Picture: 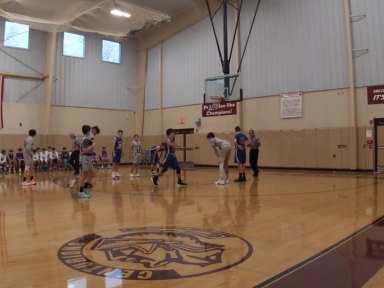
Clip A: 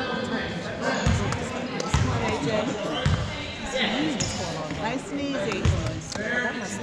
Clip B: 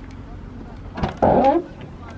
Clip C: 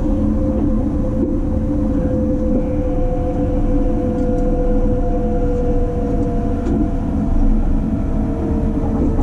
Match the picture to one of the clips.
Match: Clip A